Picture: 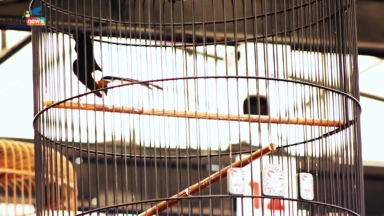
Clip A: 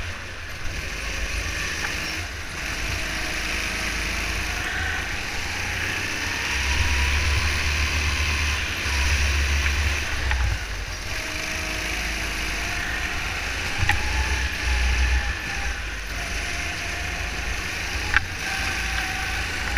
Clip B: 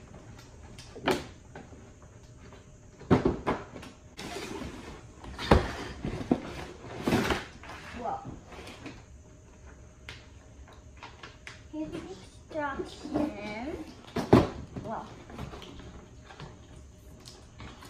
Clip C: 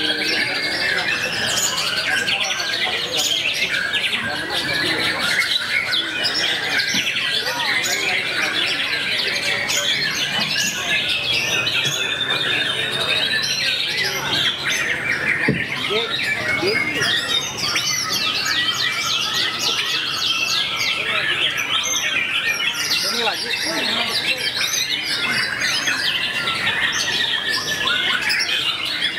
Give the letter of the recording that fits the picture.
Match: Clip C